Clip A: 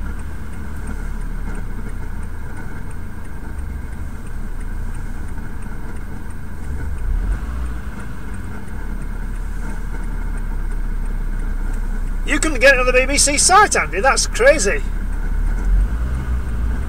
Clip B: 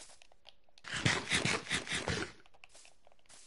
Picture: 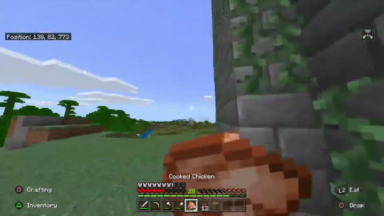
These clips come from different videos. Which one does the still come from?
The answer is B